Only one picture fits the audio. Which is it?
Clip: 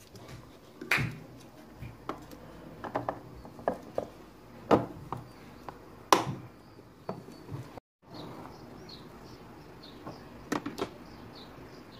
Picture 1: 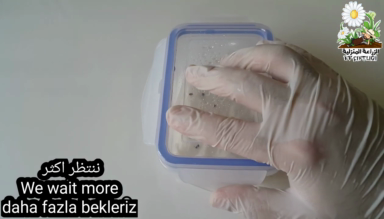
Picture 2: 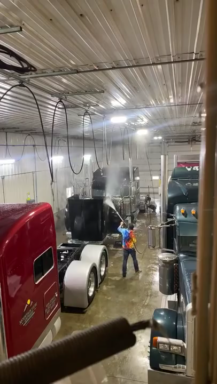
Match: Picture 1